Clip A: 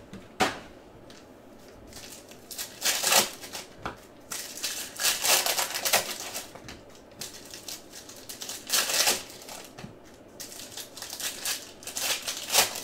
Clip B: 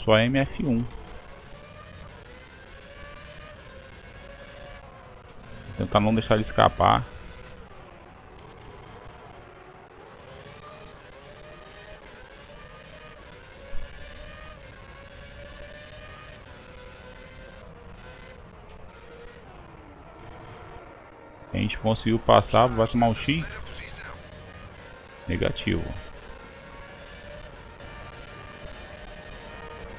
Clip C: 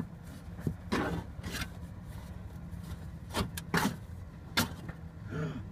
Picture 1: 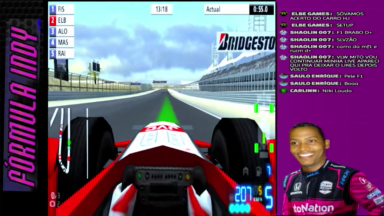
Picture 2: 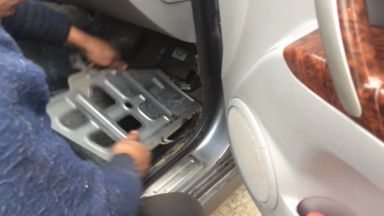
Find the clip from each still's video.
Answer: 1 B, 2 C